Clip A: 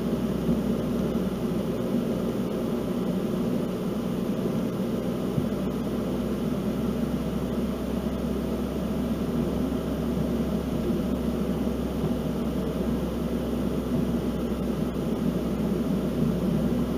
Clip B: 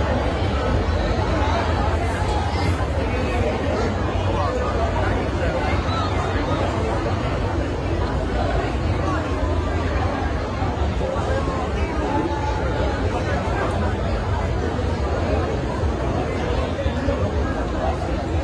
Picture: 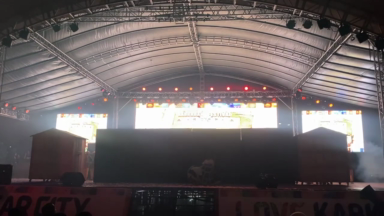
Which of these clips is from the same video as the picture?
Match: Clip B